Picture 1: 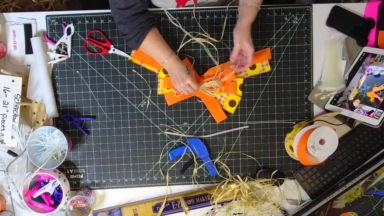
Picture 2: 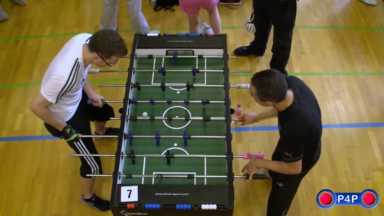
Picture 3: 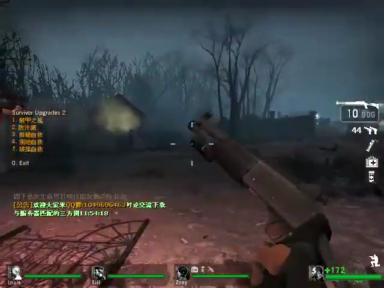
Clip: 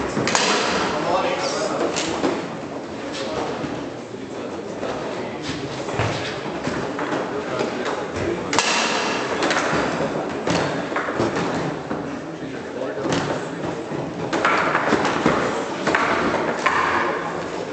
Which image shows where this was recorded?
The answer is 2